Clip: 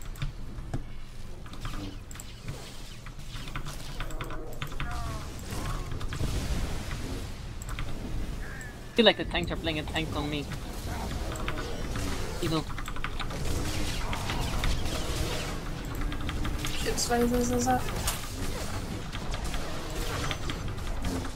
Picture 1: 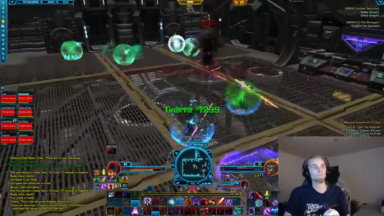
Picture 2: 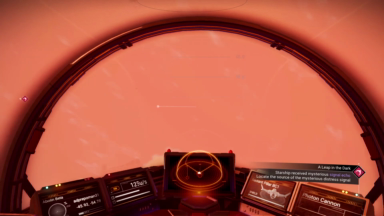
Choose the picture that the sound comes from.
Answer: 1